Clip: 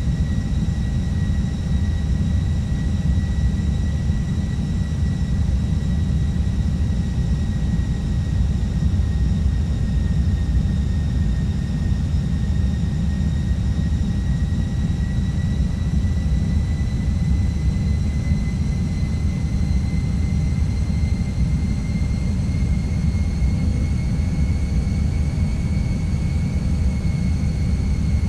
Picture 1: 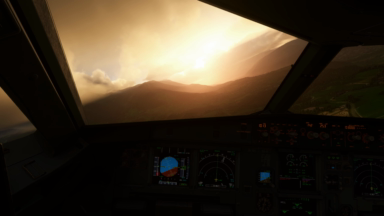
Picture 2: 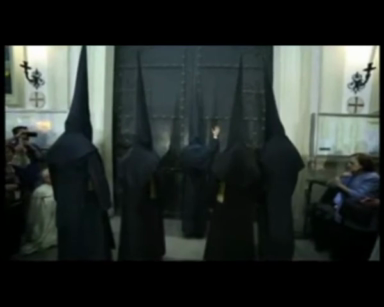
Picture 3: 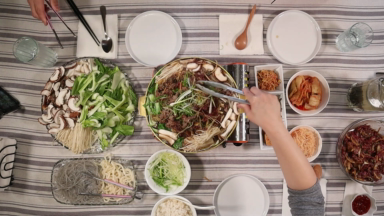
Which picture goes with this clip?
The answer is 1